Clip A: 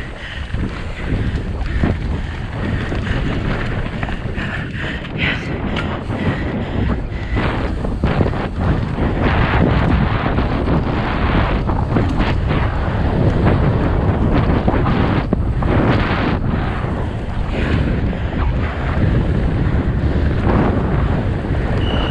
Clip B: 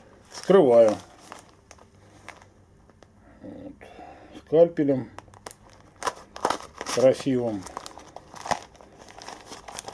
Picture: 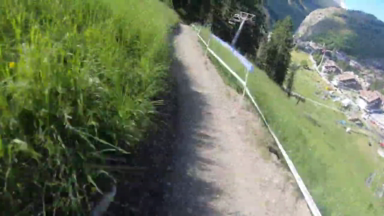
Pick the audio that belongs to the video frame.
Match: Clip A